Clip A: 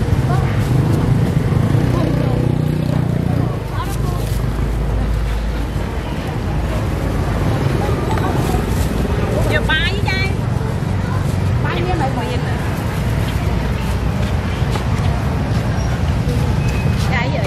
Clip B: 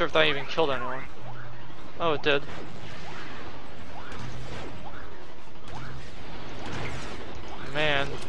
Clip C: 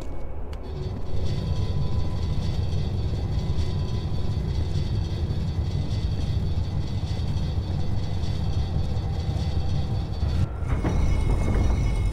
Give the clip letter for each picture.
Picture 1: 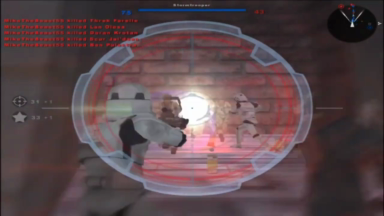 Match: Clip B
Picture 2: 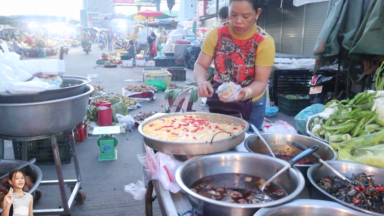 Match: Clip A